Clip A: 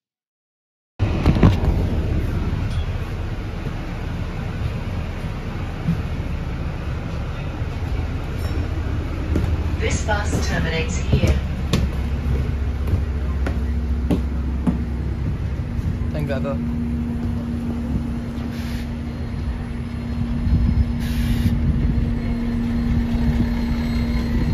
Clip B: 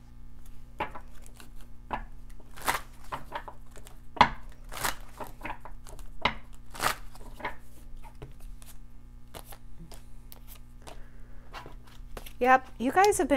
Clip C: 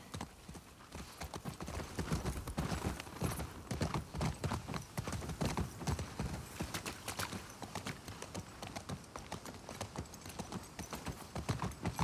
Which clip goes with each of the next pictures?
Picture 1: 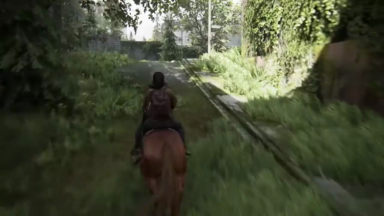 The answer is C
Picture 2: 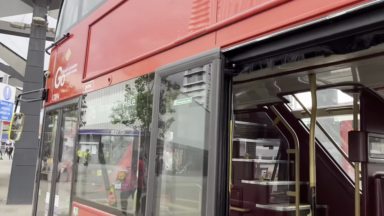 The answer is A